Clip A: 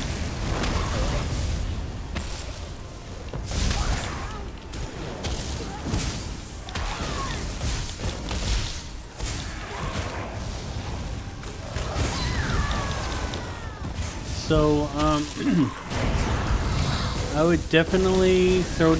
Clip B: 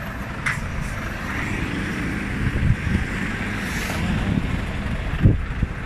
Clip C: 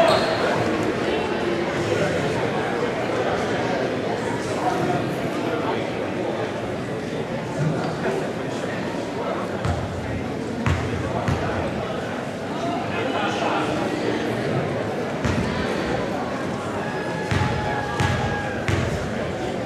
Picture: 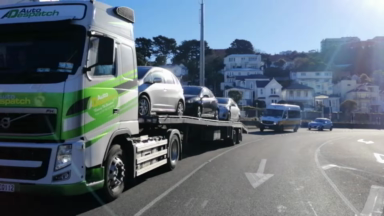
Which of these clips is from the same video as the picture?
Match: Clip B